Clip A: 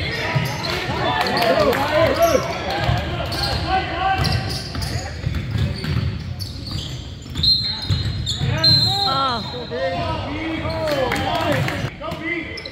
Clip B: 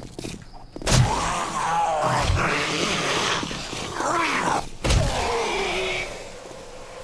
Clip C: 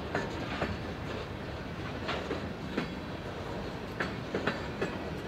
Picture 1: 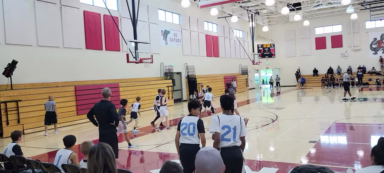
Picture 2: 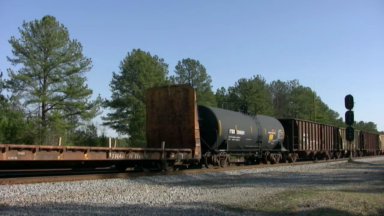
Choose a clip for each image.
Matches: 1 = A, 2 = C